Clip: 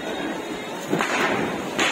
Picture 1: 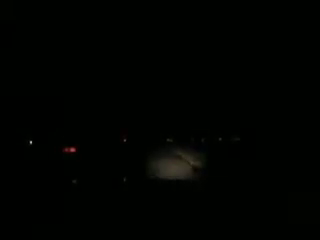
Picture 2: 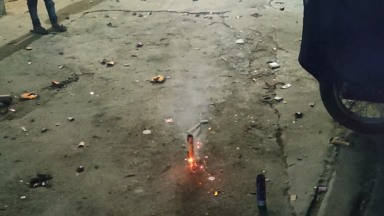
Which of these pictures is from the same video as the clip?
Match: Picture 2